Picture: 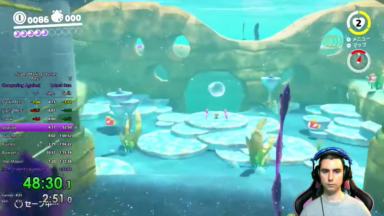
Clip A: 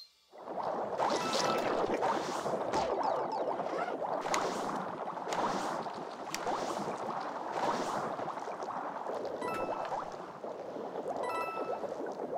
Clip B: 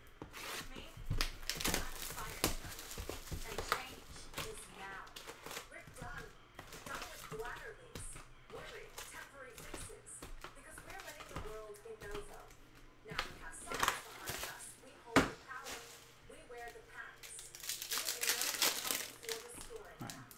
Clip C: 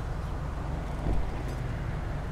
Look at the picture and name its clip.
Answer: A